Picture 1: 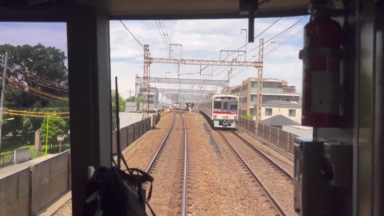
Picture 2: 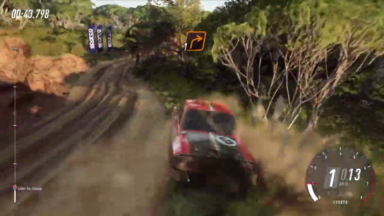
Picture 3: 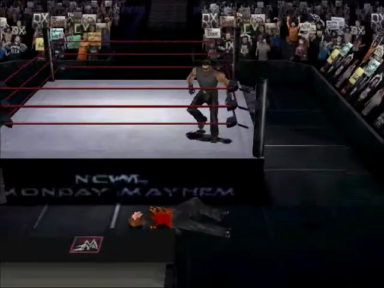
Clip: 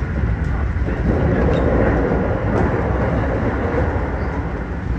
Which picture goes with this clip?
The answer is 1